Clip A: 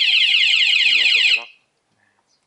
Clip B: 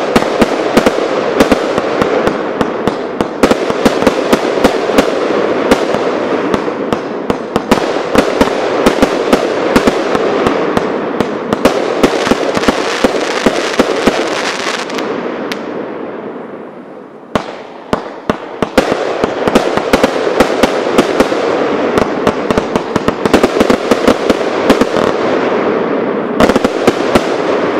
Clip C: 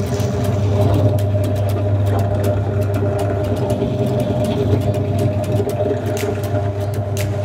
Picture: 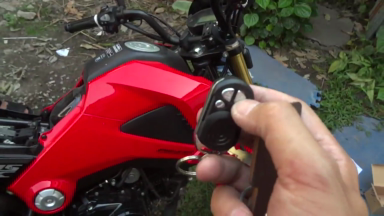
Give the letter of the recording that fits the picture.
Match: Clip A